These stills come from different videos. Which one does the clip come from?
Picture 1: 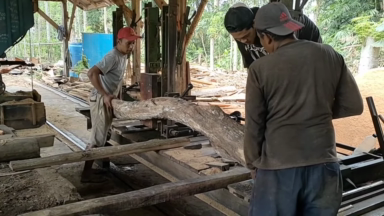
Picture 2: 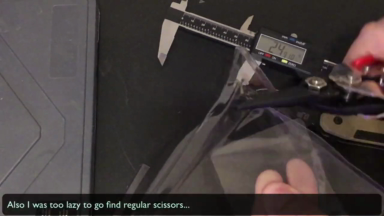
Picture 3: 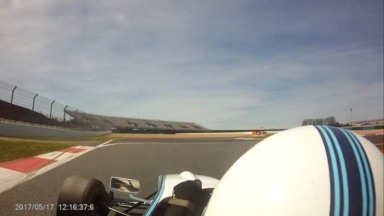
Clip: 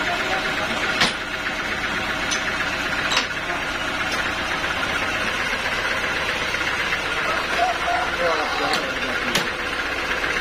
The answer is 1